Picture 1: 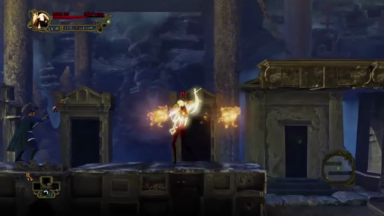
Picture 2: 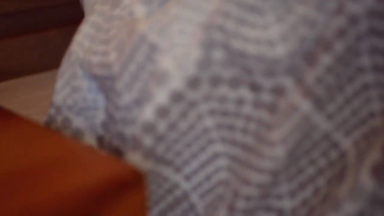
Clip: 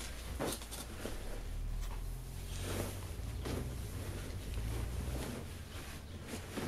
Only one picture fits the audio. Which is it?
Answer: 2